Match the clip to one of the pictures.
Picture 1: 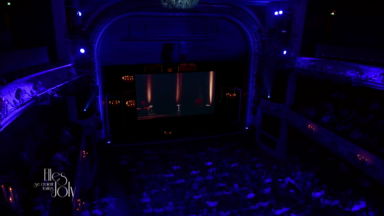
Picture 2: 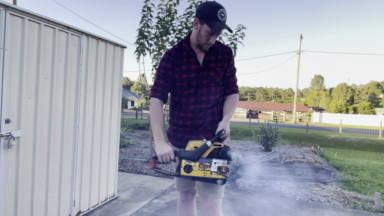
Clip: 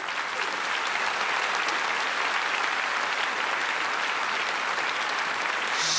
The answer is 1